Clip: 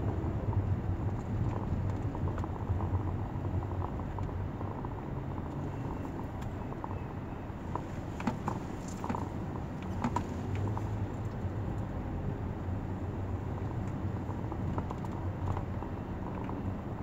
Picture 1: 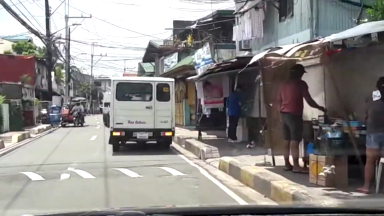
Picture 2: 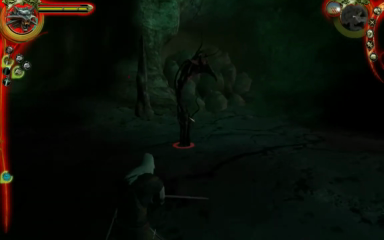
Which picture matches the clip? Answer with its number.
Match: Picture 1